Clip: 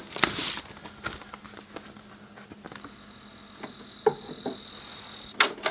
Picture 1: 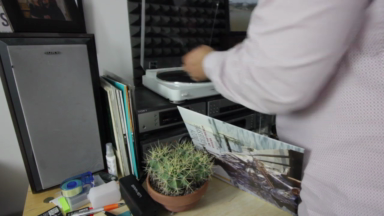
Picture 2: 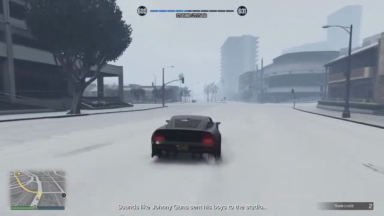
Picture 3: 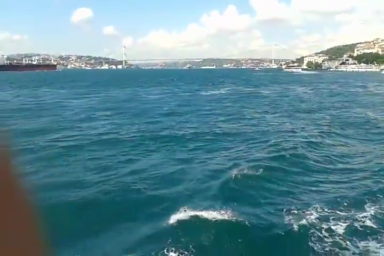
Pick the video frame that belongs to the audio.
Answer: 1